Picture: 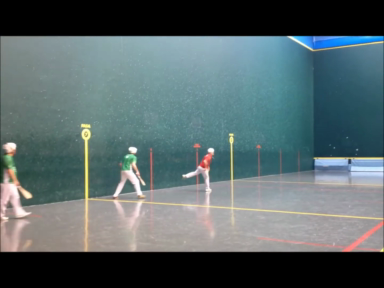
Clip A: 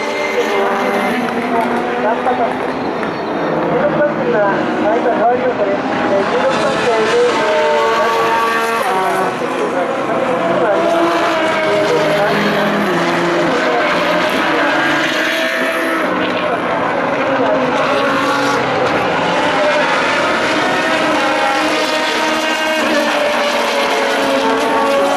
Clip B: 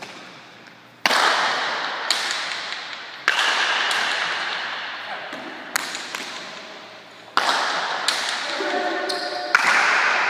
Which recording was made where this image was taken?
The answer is B